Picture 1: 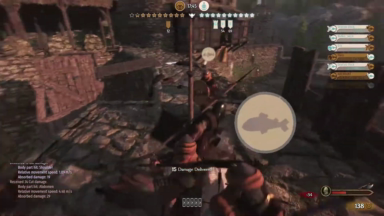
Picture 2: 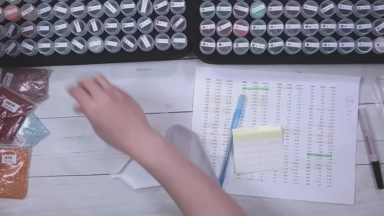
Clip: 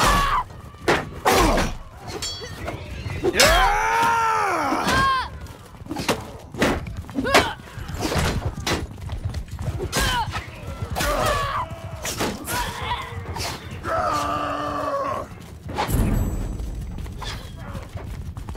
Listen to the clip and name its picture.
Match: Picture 1